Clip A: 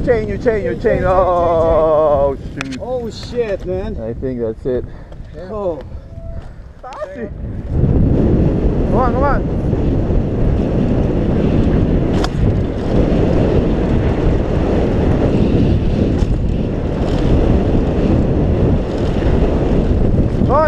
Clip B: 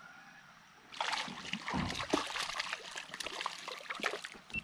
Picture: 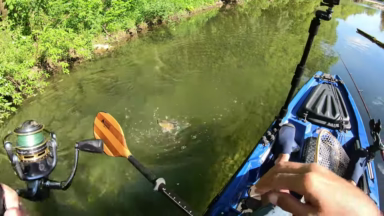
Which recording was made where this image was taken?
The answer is B